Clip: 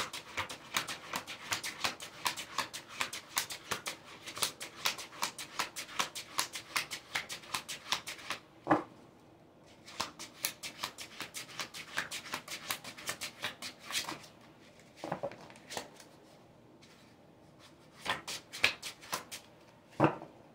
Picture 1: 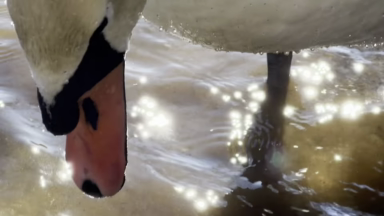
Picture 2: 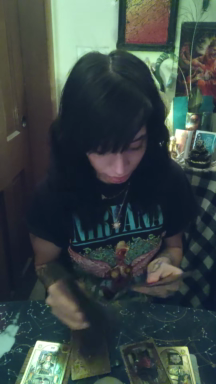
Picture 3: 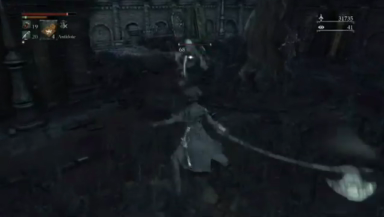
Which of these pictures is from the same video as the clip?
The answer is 2